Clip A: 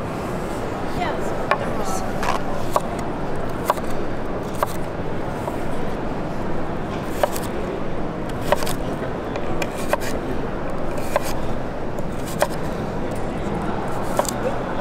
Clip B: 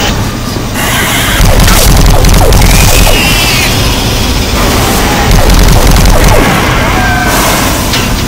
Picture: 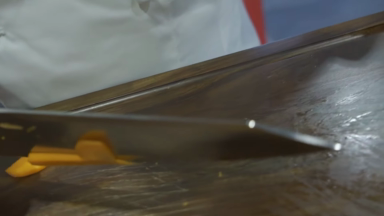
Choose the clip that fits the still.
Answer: A